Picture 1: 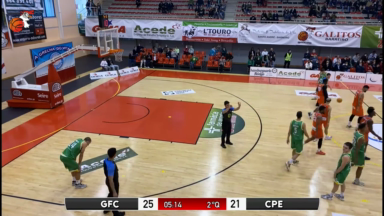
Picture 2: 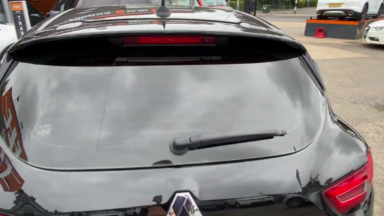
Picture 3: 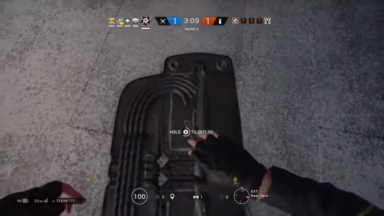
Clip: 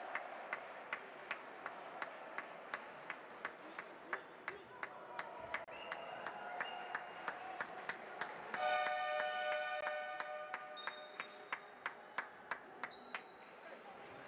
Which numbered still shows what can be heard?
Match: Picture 1